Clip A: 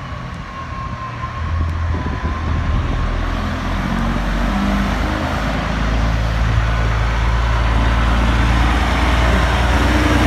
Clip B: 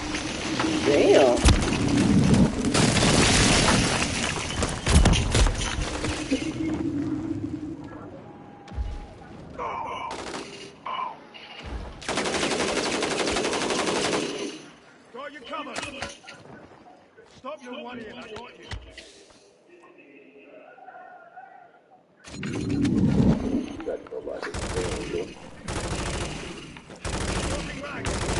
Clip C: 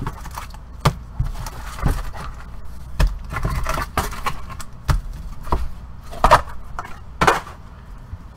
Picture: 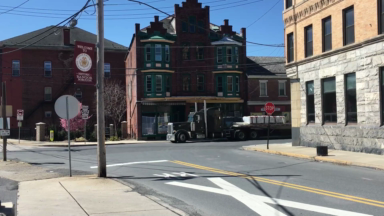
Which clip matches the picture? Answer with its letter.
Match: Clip A